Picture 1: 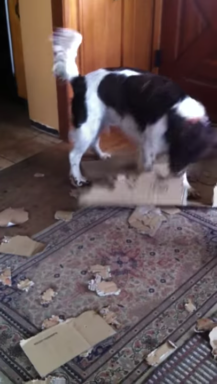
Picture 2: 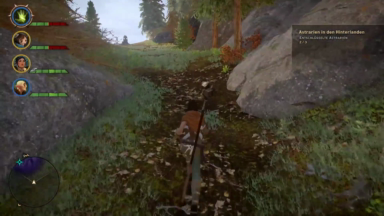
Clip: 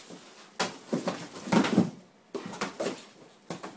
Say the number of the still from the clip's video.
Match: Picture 1